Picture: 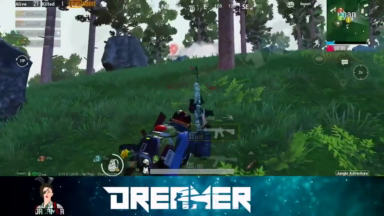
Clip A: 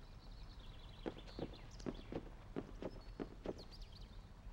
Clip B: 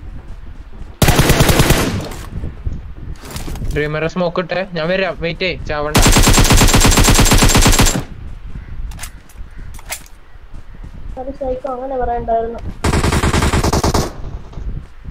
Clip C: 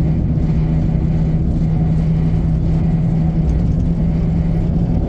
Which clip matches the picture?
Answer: B